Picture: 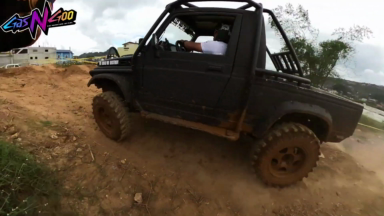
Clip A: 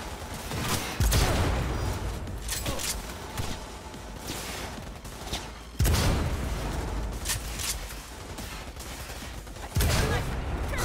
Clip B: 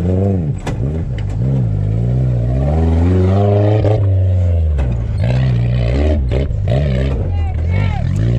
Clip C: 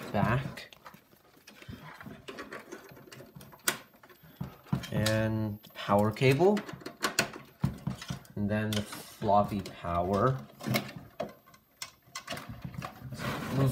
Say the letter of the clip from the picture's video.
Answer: B